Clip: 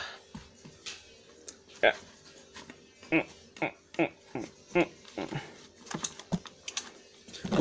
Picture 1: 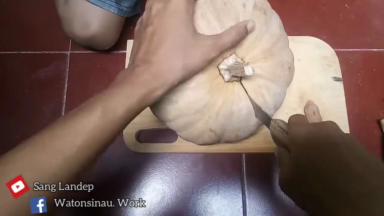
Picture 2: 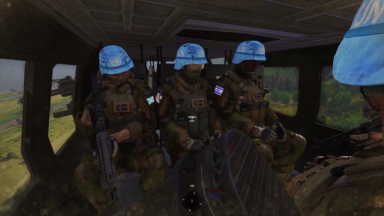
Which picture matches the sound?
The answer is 1